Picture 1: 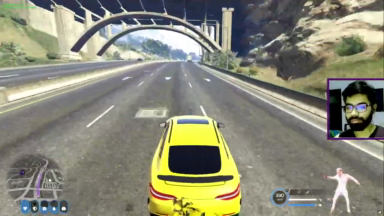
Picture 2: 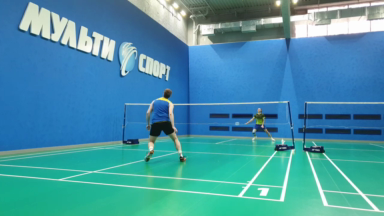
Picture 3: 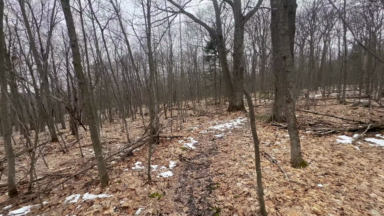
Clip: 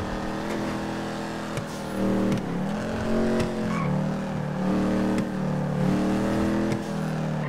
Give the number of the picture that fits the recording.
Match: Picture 1